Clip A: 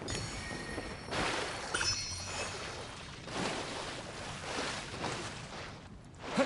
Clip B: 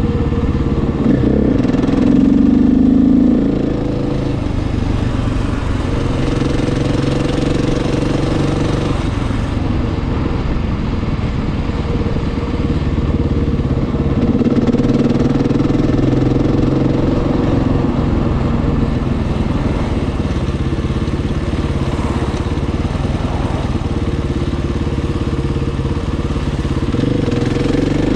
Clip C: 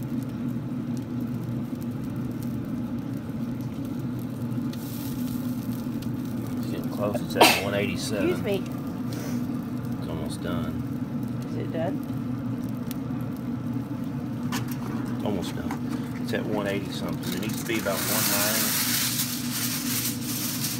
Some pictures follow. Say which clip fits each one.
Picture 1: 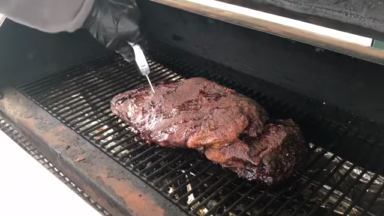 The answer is C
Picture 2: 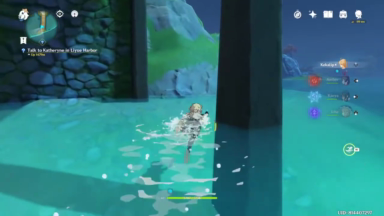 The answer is A